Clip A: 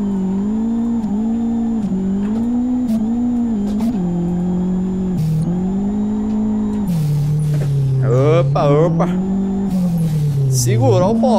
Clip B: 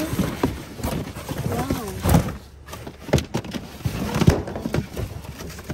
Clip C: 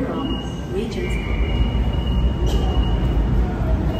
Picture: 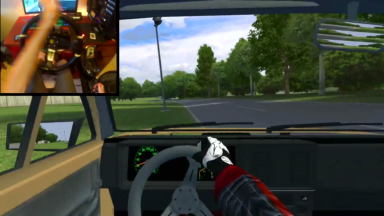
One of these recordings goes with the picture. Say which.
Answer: A